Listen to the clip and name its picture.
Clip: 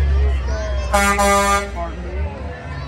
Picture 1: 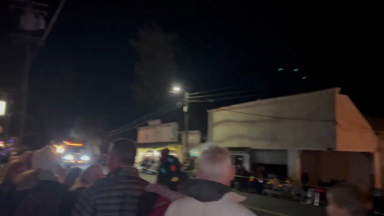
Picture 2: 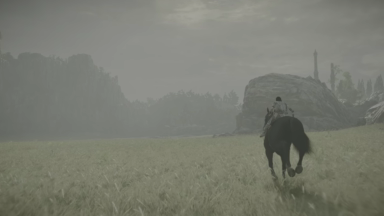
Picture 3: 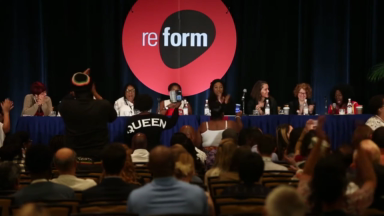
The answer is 1